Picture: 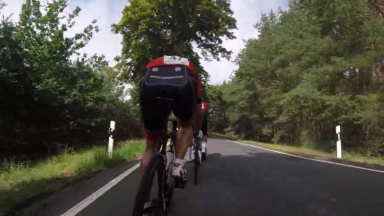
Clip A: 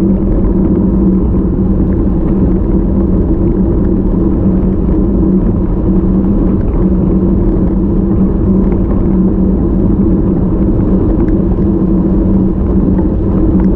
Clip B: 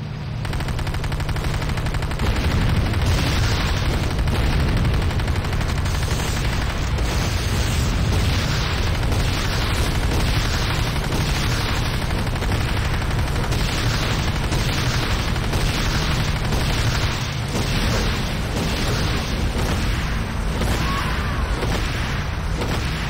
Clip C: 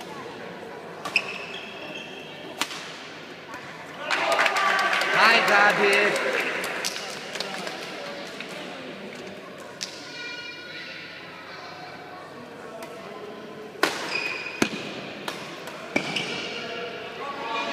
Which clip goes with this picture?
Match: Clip A